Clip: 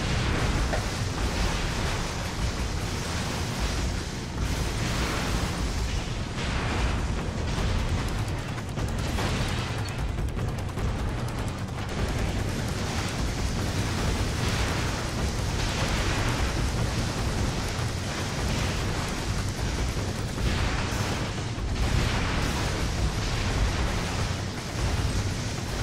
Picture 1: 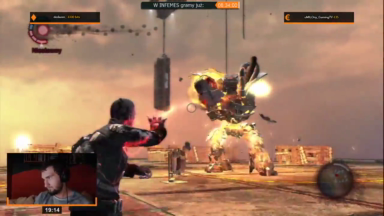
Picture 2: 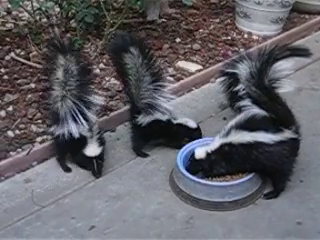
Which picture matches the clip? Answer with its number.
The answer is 1